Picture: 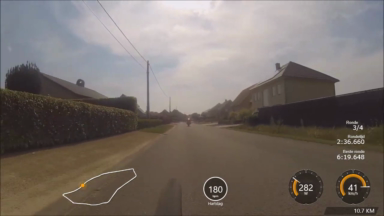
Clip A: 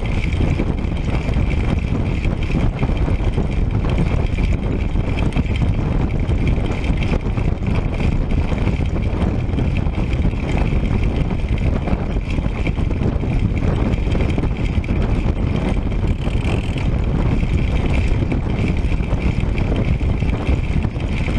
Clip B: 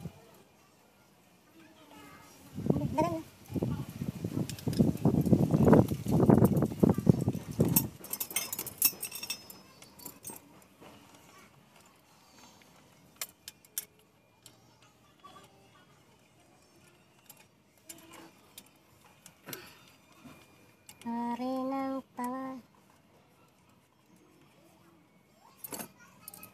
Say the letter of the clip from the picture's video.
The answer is A